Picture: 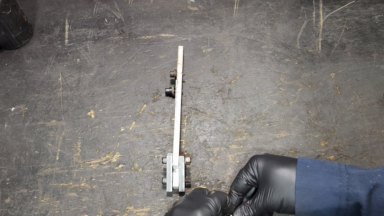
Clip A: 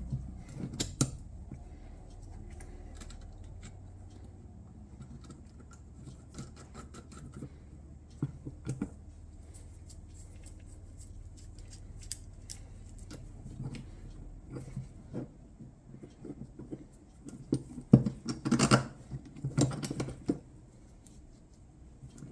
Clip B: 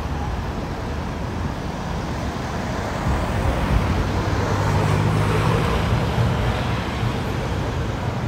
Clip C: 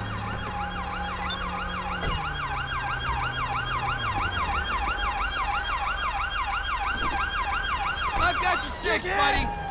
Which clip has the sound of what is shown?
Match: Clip A